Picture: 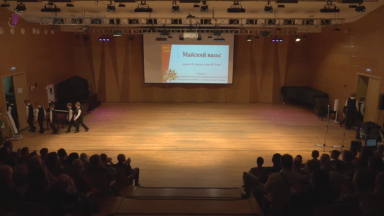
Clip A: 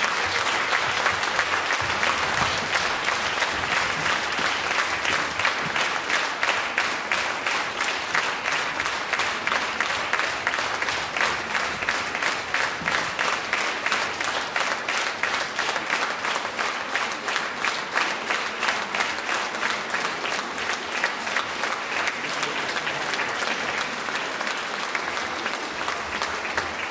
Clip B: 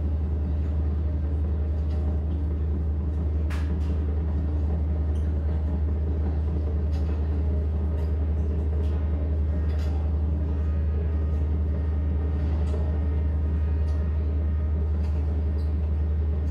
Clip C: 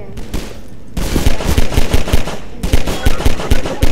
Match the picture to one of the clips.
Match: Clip A